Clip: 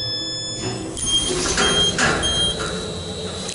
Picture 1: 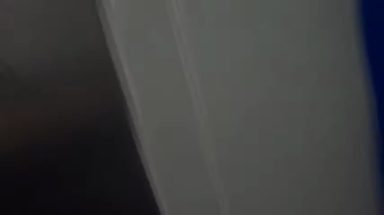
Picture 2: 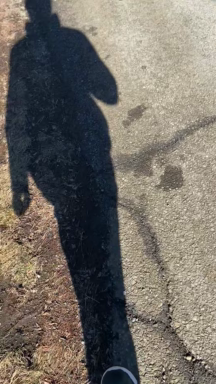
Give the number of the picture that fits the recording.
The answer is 1